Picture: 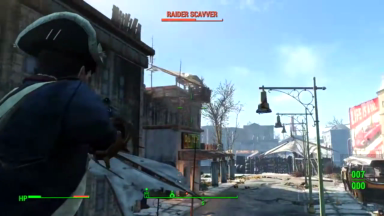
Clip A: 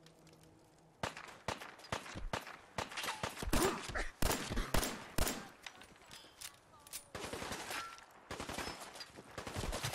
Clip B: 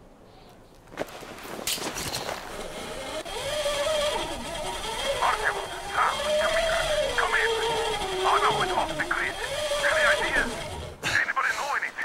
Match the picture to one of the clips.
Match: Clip A